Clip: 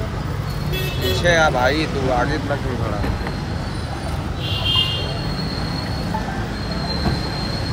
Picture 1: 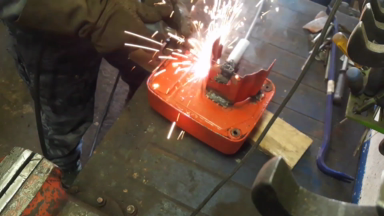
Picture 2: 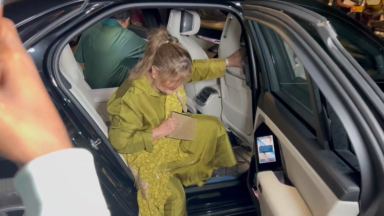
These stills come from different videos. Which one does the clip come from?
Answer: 2